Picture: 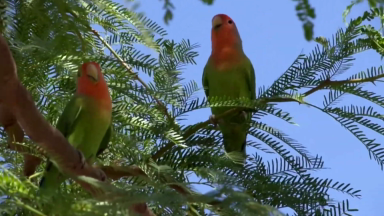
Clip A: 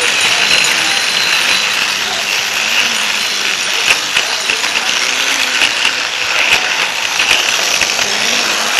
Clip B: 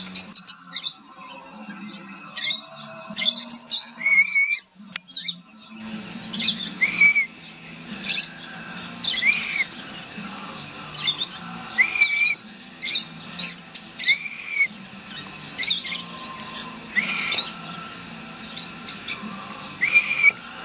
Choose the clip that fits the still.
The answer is B